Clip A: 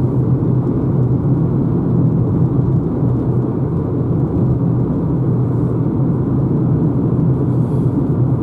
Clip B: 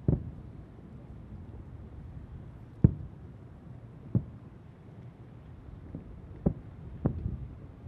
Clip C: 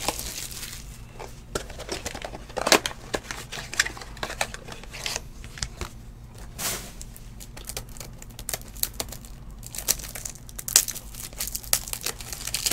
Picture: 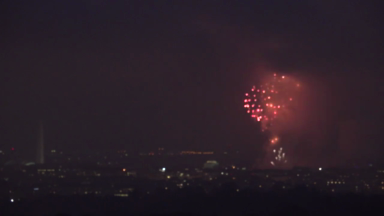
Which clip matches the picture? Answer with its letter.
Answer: B